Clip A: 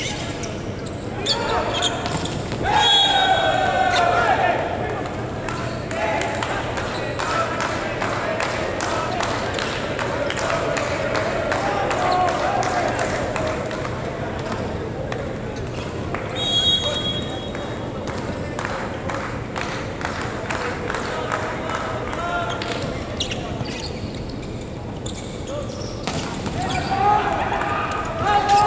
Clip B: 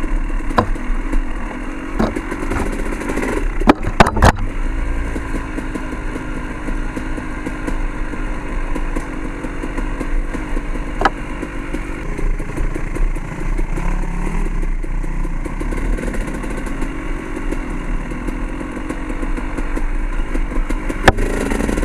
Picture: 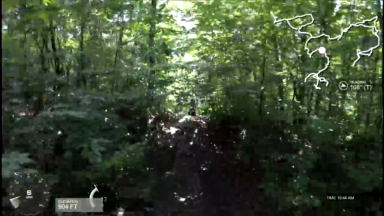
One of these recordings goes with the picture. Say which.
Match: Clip B